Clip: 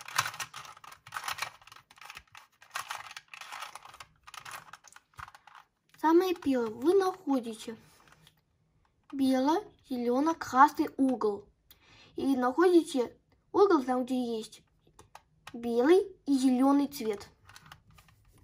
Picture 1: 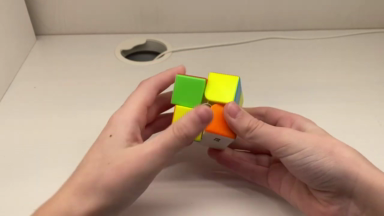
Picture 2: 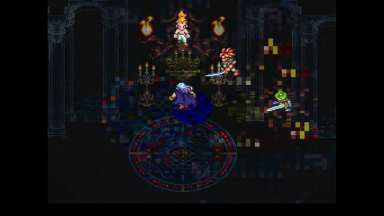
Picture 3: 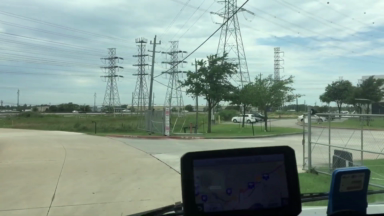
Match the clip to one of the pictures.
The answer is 1